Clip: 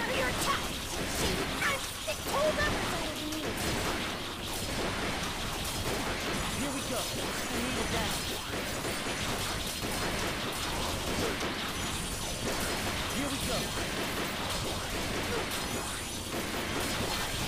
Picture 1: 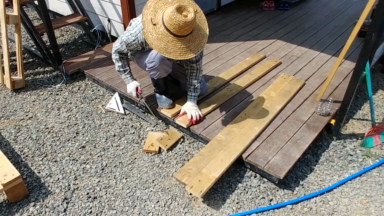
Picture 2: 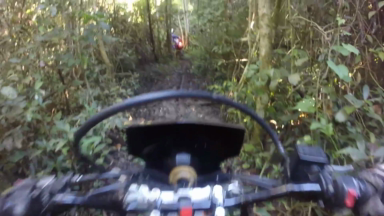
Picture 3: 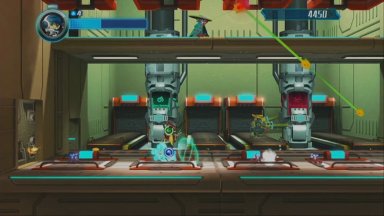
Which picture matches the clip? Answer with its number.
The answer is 3